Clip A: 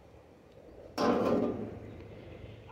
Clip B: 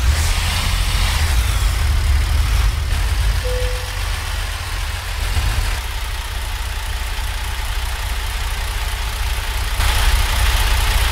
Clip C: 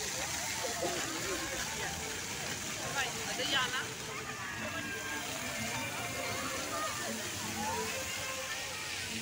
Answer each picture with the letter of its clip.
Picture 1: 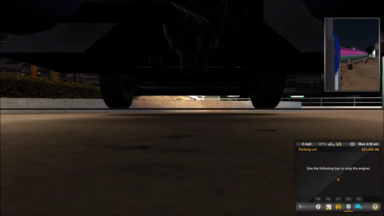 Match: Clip B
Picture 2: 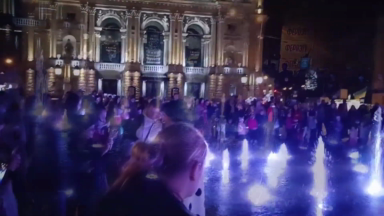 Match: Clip C